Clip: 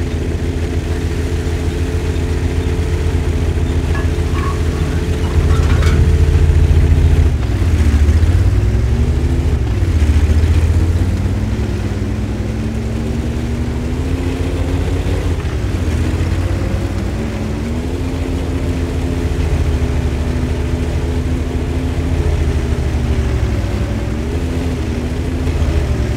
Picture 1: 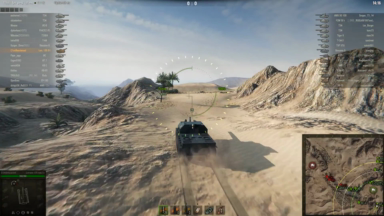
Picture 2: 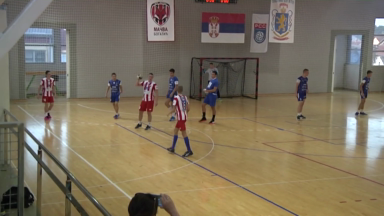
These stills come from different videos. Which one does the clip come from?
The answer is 1